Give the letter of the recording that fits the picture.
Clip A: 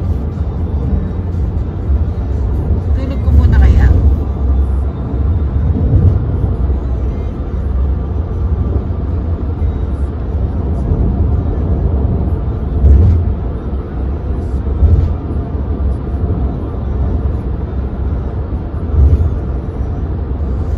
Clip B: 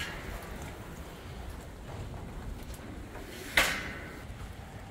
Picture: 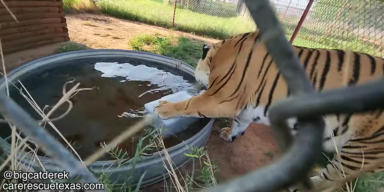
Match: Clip B